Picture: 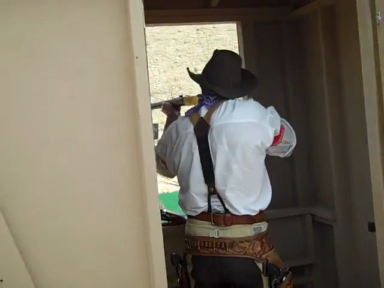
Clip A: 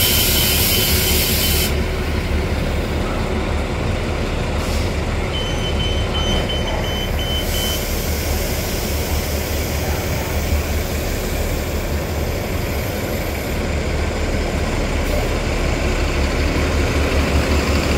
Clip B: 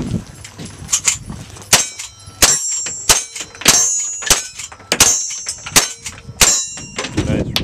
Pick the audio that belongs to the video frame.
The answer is B